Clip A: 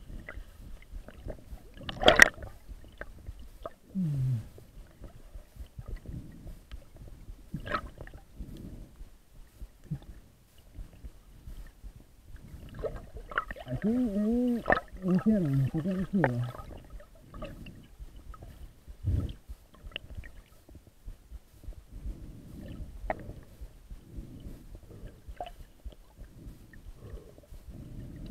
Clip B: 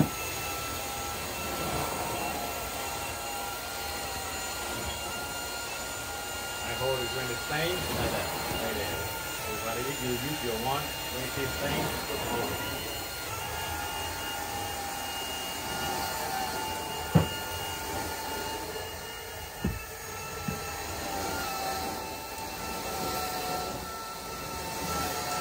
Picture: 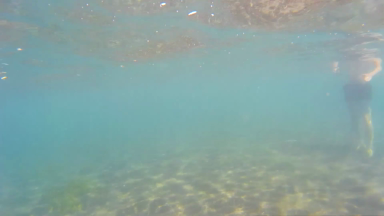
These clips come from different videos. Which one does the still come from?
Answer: A